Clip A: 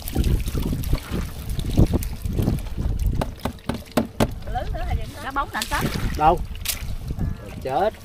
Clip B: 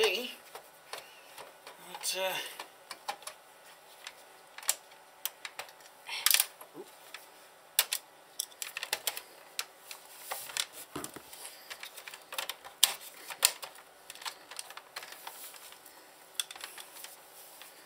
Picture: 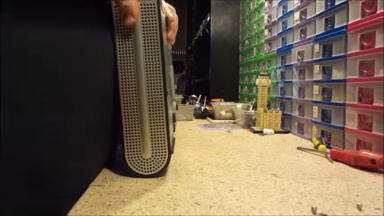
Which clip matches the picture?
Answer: B